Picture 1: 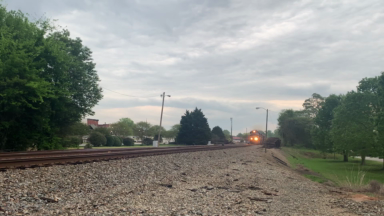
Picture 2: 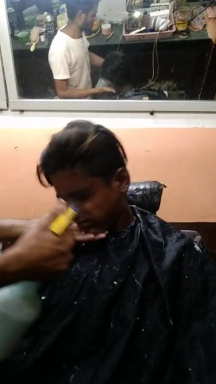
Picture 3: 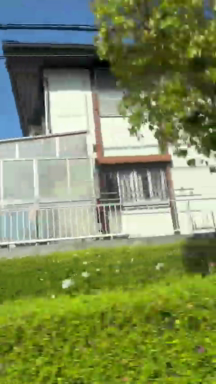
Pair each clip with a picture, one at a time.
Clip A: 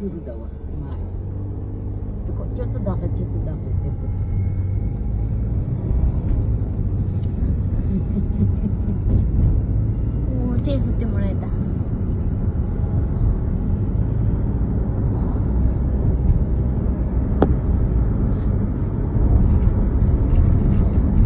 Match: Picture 3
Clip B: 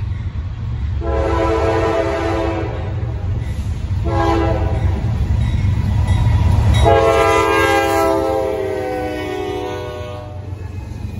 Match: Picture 1